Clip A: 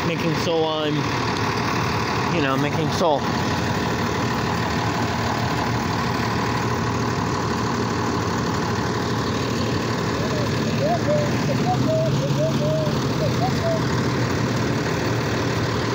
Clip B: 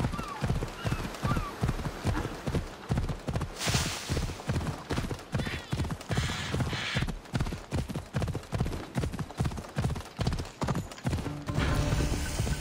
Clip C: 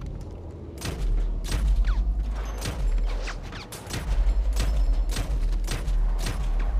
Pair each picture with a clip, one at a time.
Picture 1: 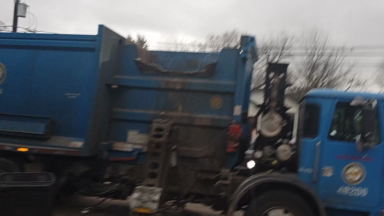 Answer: A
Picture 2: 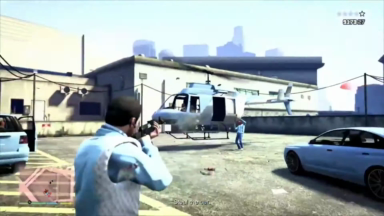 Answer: C